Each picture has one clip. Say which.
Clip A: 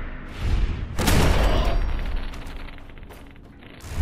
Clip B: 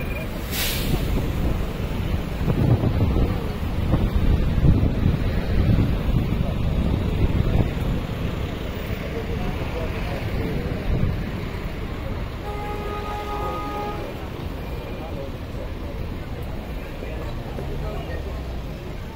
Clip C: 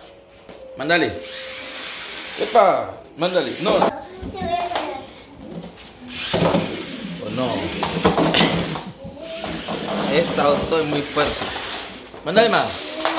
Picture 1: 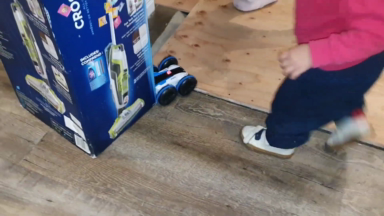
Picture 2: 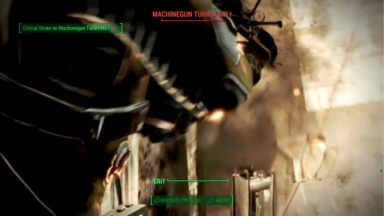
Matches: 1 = C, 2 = A